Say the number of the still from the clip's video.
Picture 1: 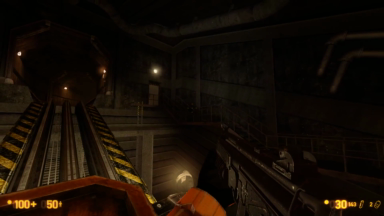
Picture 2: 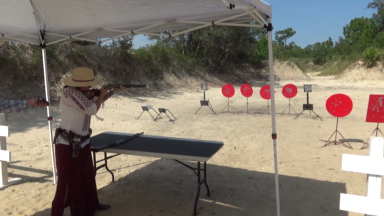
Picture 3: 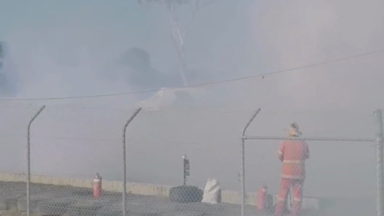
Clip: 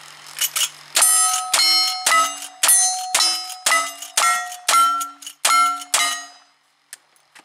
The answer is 2